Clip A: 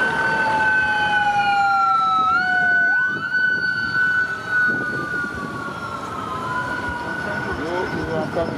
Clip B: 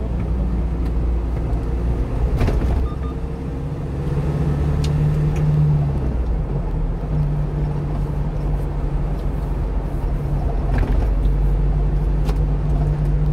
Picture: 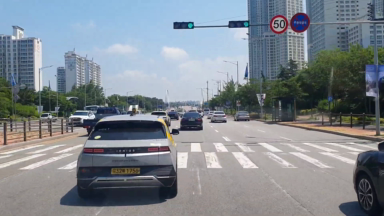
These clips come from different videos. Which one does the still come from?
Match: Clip B